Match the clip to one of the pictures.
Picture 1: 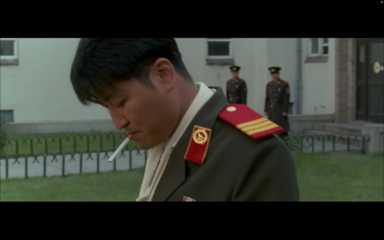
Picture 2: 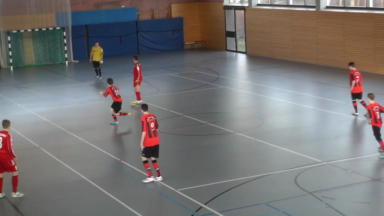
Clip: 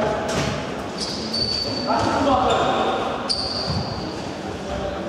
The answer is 2